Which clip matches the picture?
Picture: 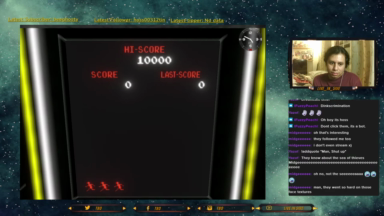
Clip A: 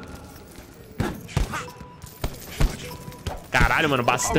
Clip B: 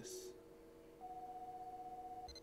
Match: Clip B